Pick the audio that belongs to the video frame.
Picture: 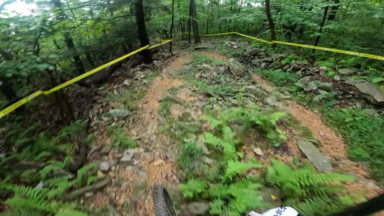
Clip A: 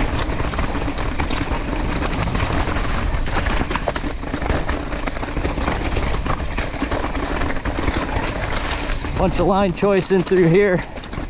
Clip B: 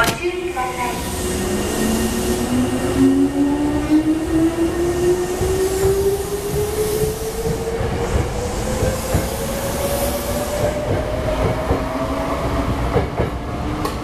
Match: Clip A